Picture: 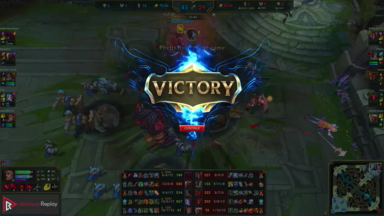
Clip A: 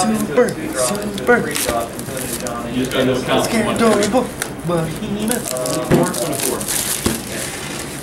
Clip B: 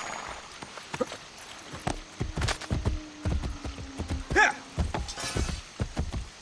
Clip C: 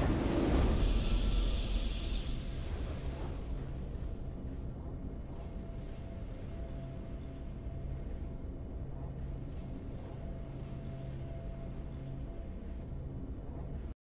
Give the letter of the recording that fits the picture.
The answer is C